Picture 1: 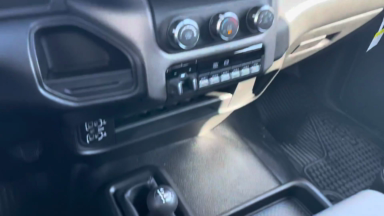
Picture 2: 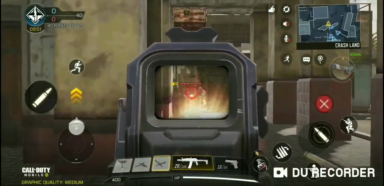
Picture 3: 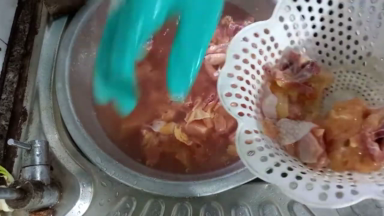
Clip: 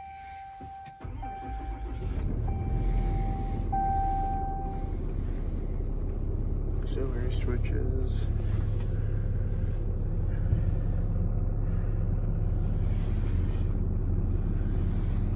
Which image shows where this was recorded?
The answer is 1